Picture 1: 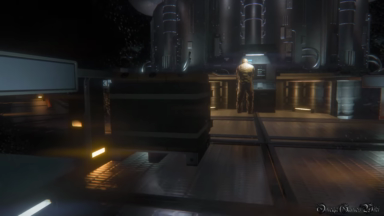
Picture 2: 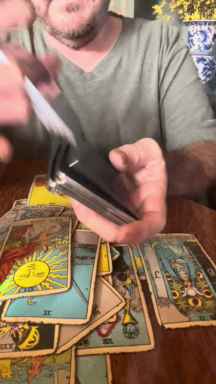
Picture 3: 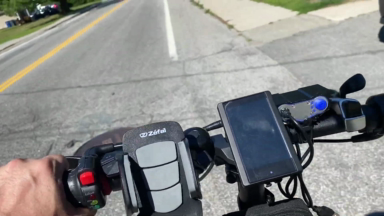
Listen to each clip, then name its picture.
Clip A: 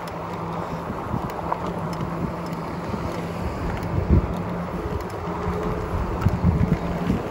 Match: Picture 3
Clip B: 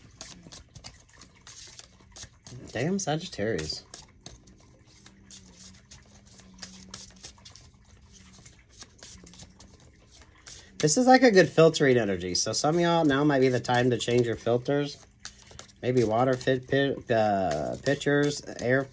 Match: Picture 2